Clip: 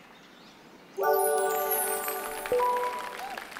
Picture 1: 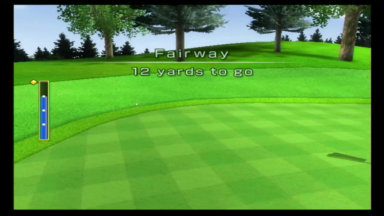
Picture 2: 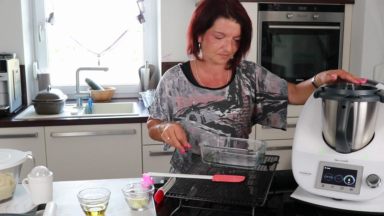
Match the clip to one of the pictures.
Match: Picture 1